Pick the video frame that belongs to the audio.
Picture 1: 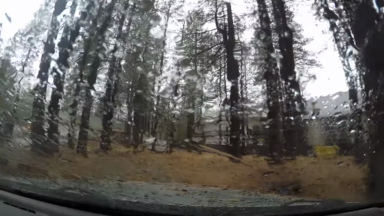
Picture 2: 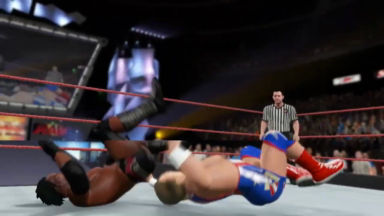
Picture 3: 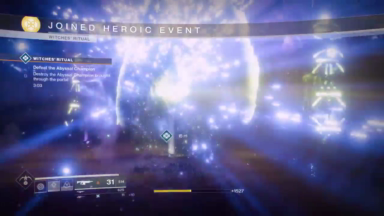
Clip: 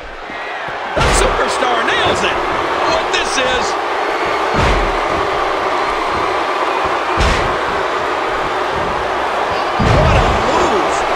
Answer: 2